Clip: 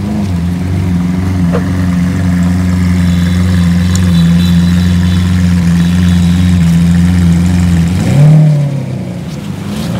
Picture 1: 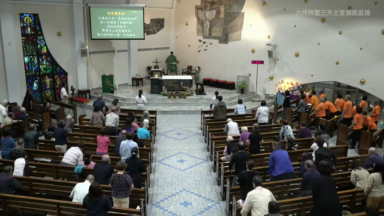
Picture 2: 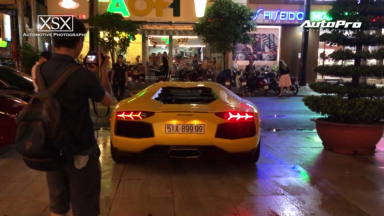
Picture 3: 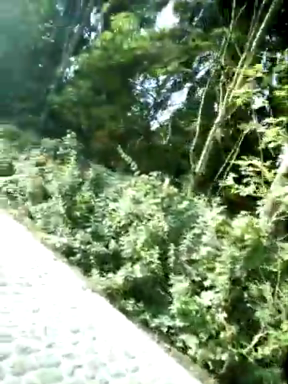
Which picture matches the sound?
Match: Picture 2